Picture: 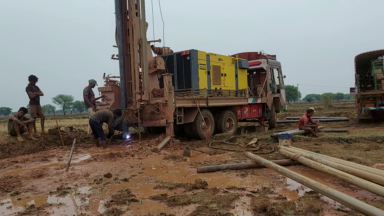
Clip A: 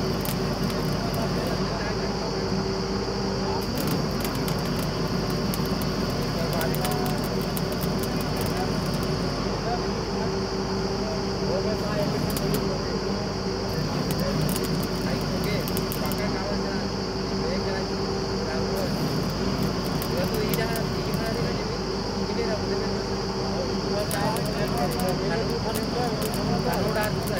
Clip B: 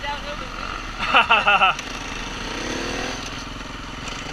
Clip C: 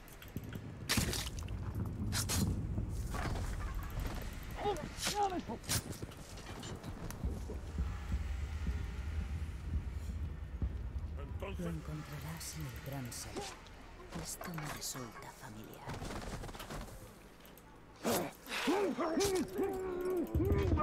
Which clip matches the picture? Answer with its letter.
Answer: A